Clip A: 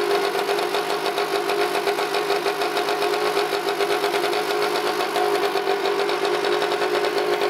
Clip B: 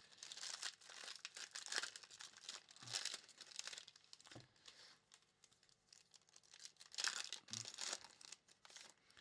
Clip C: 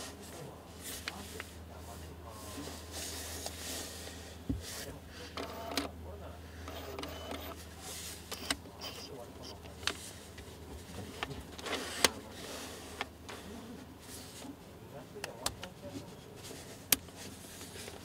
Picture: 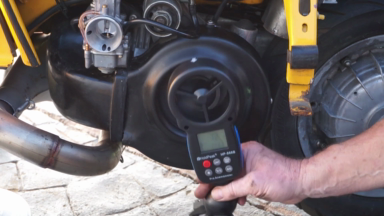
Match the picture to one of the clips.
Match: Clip A